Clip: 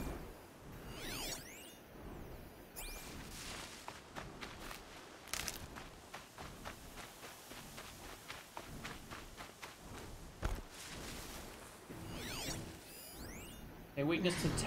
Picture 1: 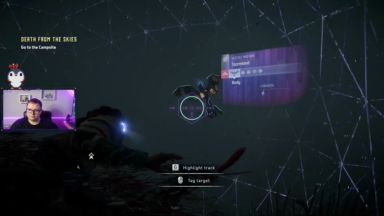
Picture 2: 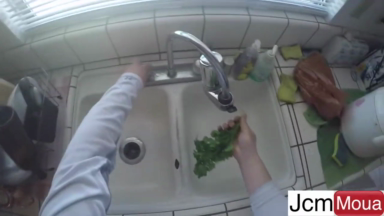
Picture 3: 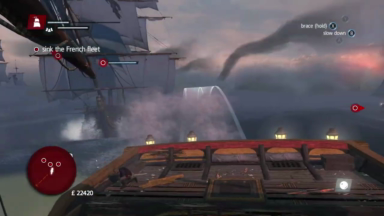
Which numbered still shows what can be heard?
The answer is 1